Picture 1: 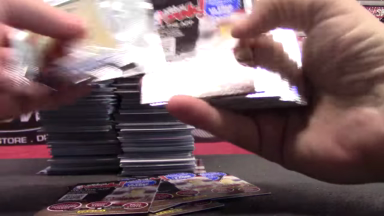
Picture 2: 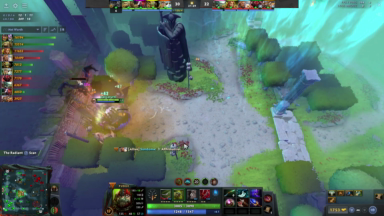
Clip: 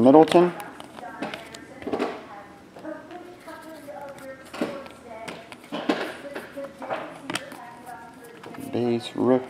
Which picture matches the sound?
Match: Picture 1